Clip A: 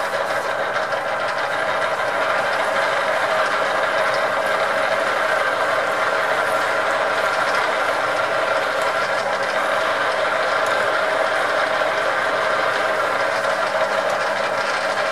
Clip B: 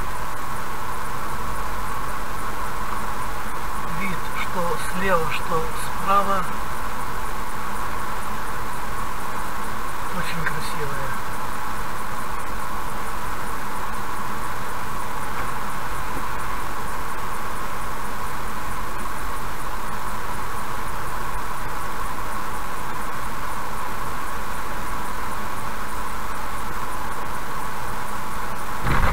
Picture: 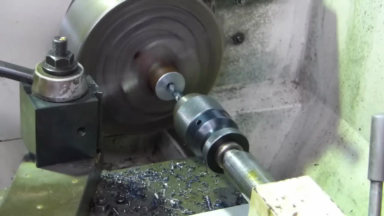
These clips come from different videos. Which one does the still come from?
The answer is A